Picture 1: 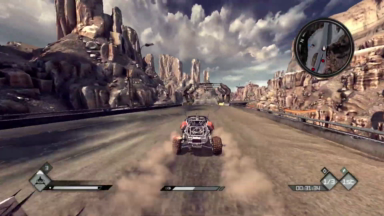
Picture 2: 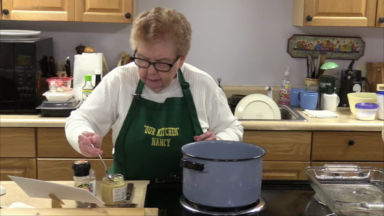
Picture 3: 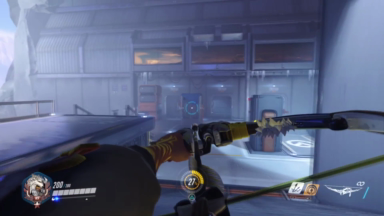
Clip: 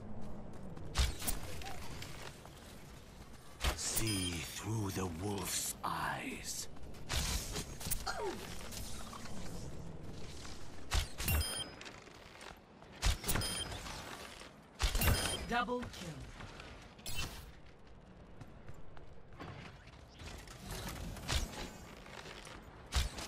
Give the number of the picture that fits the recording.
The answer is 3